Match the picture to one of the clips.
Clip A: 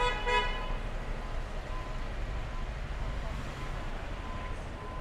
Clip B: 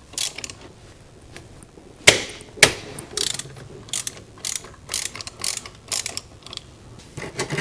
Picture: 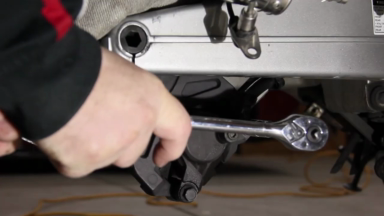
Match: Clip B